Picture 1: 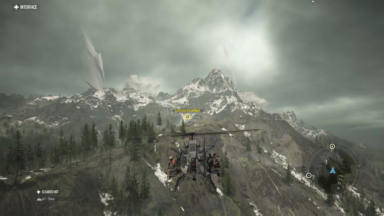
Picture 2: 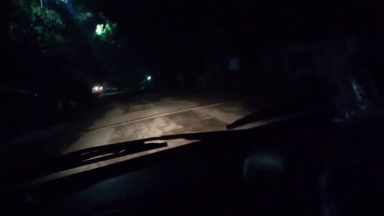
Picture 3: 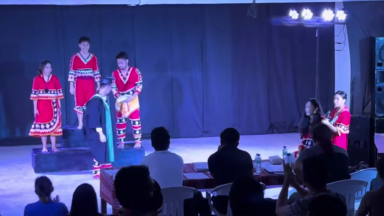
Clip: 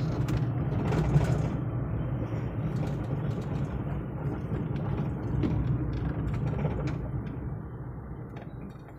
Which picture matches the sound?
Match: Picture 2